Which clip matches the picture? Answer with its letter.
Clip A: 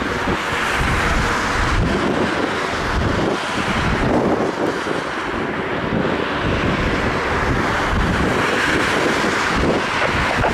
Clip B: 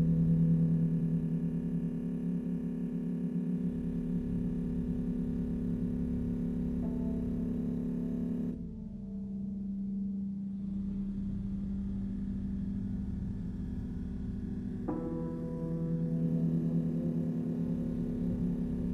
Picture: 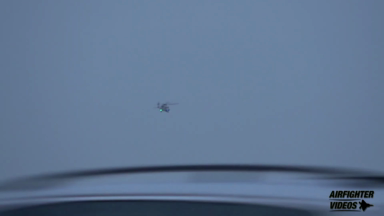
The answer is A